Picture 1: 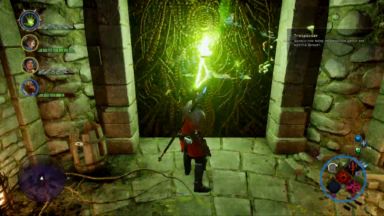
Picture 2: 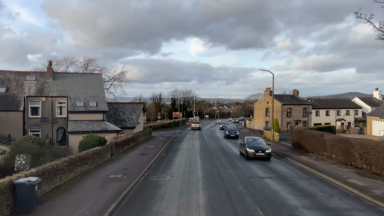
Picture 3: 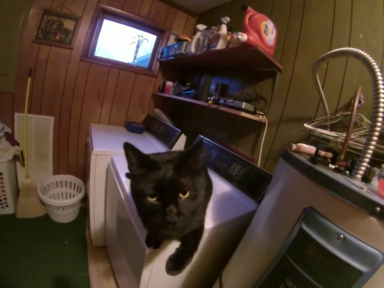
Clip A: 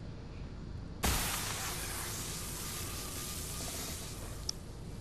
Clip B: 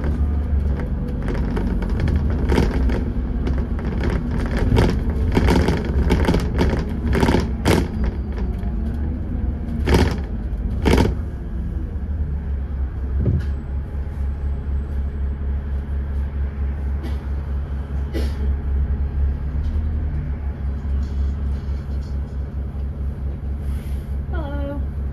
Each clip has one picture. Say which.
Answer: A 1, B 2